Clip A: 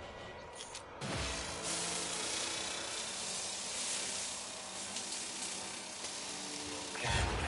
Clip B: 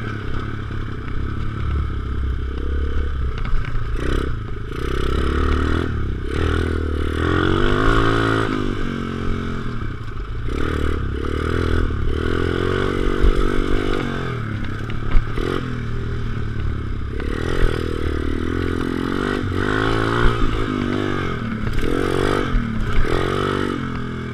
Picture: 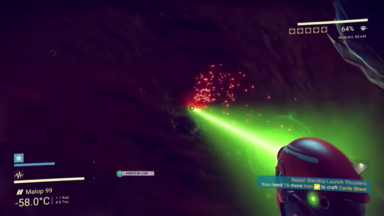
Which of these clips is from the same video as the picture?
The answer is A